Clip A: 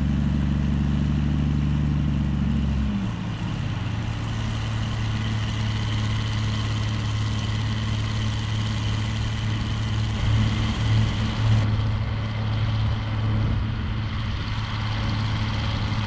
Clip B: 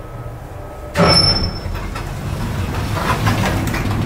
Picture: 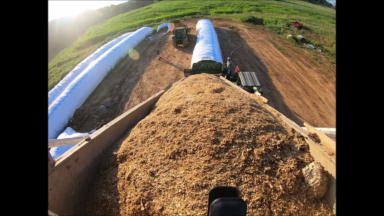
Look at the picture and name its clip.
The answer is A